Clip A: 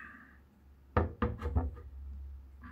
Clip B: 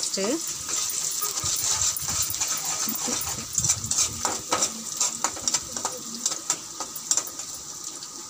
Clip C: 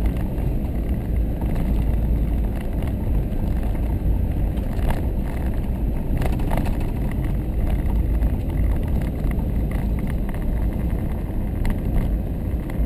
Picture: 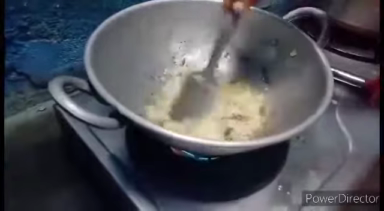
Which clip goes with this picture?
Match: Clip B